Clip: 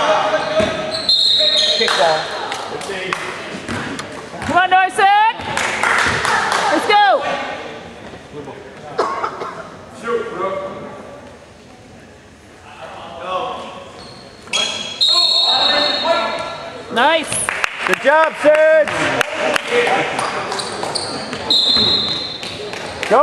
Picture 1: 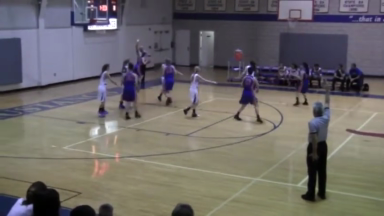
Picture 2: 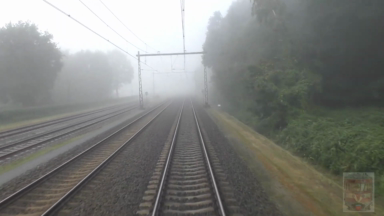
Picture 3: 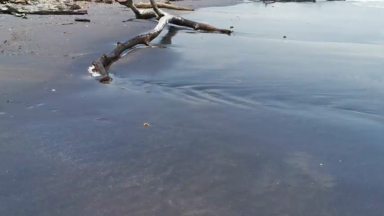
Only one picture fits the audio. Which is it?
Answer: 1